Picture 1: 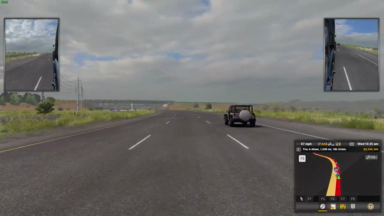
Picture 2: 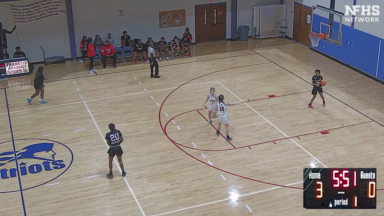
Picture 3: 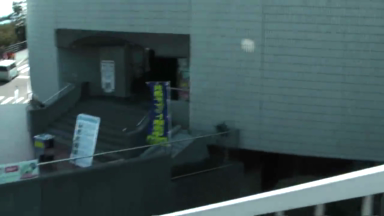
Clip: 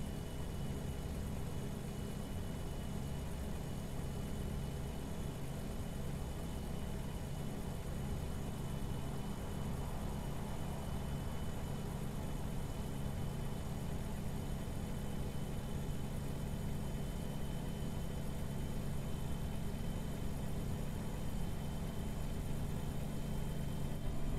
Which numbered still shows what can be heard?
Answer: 1